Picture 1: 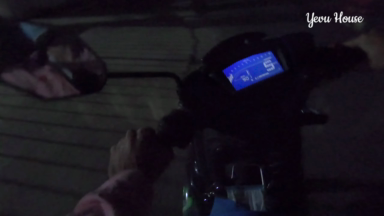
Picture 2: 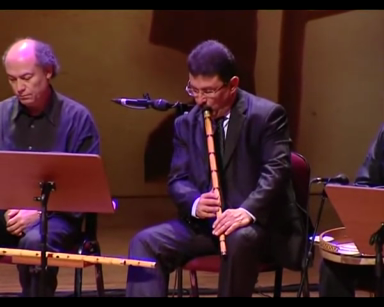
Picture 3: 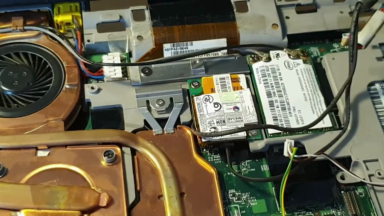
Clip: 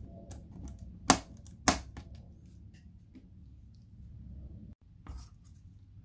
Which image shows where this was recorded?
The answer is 3